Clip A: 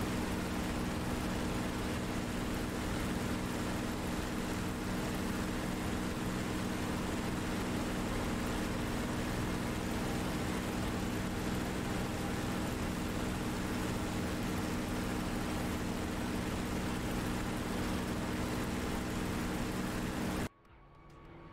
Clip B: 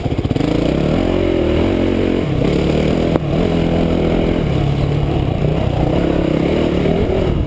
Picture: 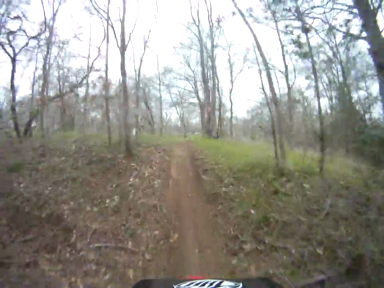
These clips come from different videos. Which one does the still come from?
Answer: B